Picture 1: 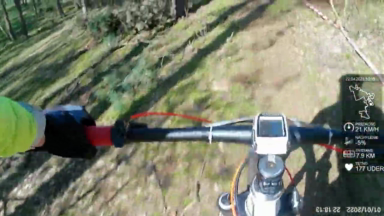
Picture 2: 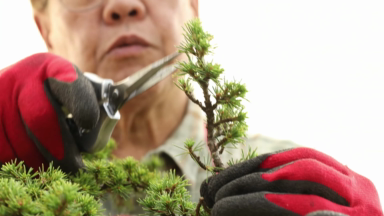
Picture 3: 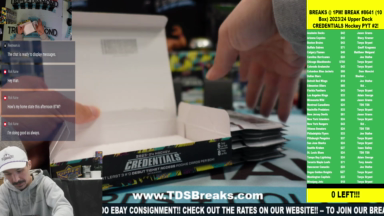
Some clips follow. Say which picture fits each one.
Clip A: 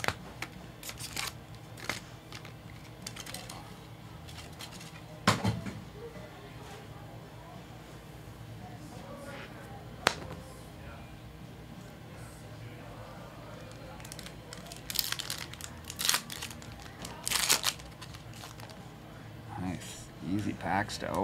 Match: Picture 3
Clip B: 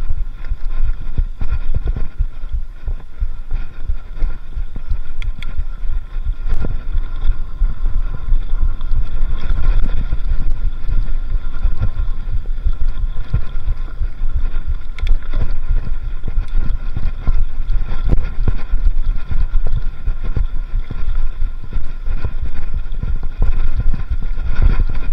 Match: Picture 1